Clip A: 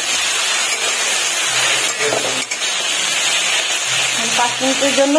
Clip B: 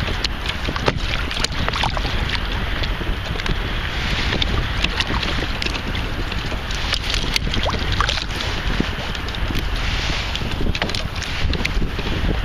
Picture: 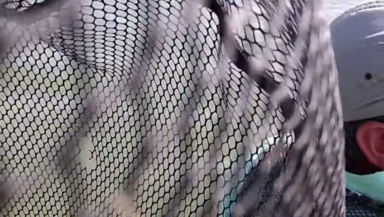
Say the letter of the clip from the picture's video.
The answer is B